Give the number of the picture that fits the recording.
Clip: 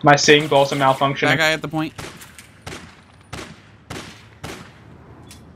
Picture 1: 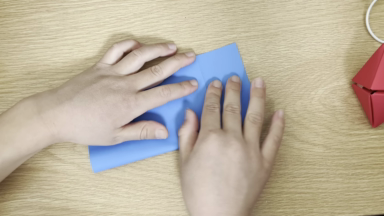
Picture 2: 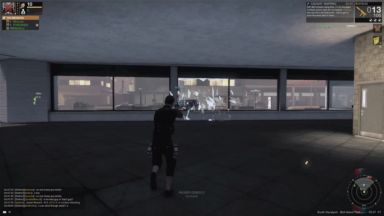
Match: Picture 2